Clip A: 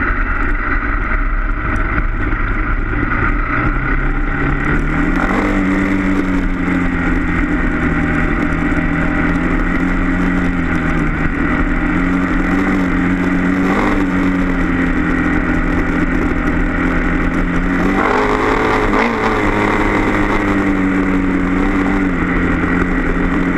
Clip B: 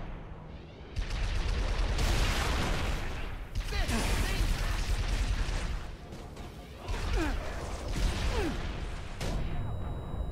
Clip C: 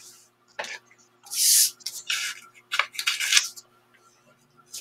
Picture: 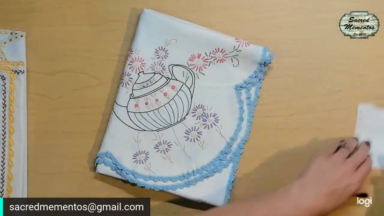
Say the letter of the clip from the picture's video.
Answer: C